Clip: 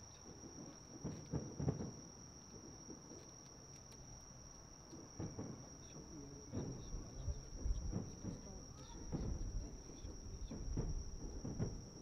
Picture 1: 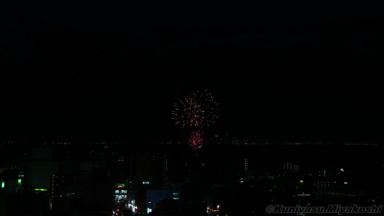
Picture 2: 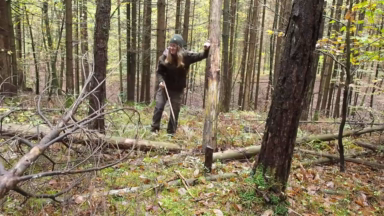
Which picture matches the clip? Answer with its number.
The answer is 1